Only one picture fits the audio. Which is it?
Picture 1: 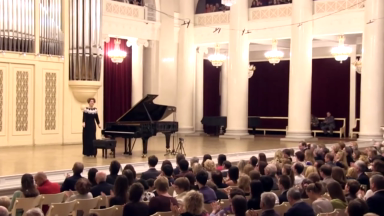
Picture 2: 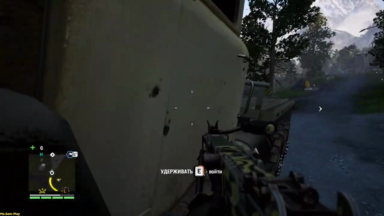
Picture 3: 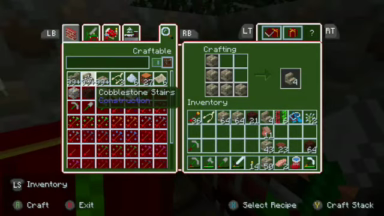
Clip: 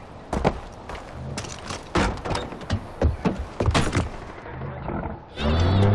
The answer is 2